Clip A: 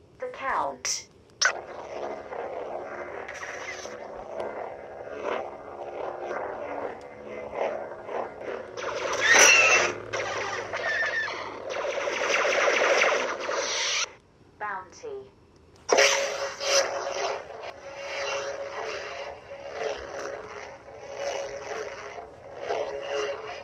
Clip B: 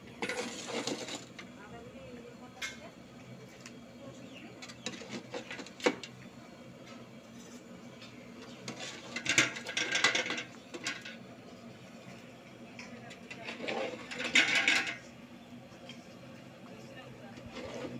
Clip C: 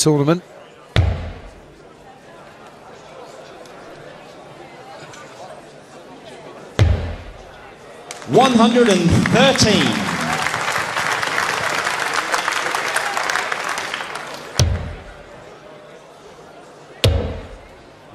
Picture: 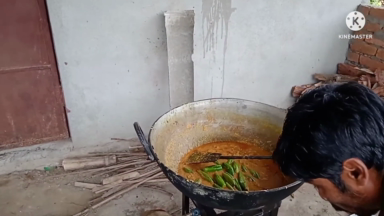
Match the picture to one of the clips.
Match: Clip B